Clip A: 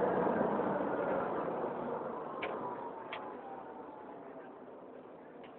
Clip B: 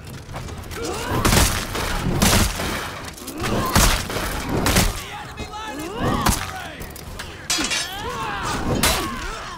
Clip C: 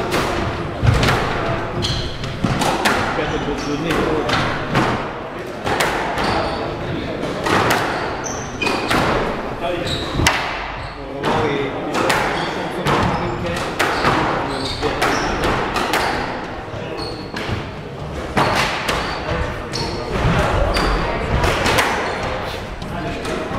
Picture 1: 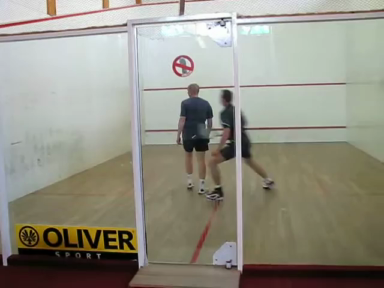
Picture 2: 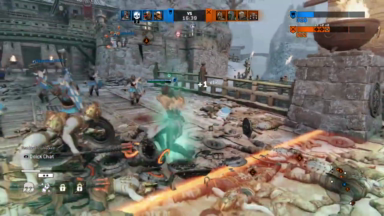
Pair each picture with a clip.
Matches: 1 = C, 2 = B